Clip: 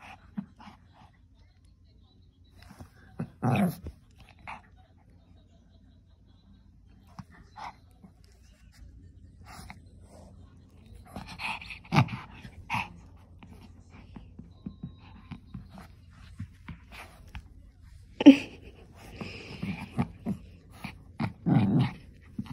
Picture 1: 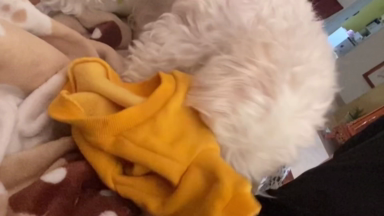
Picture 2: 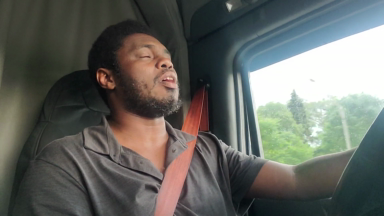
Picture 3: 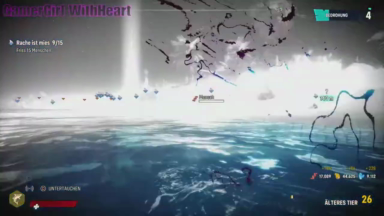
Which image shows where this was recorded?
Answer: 1